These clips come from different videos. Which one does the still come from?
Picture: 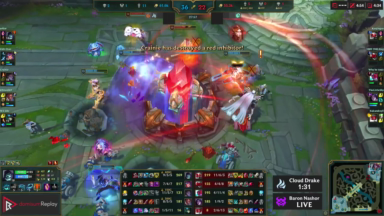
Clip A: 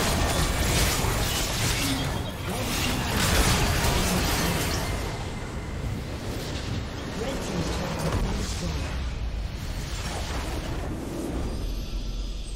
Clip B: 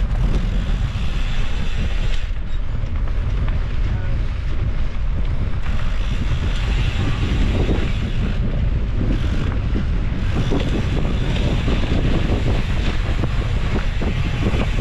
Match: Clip A